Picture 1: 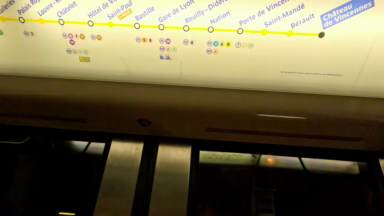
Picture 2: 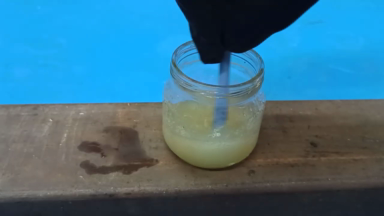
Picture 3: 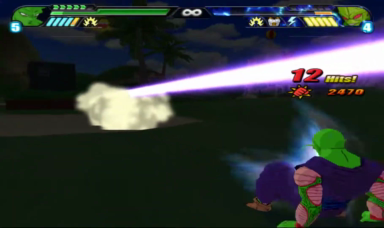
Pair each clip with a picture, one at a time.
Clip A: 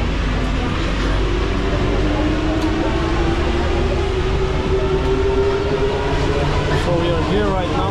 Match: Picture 1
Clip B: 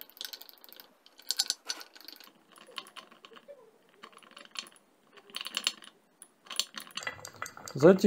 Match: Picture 2